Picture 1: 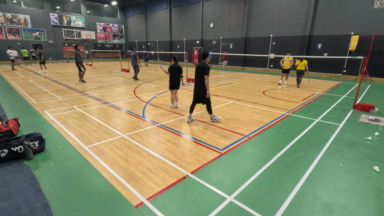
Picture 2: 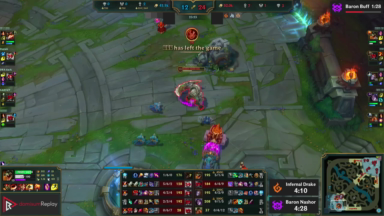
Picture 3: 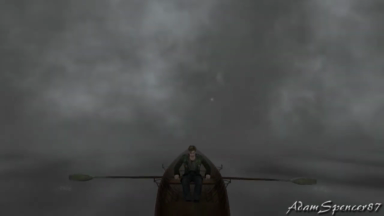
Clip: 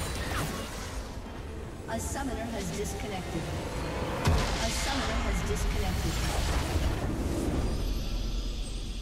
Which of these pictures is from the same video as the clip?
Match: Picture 2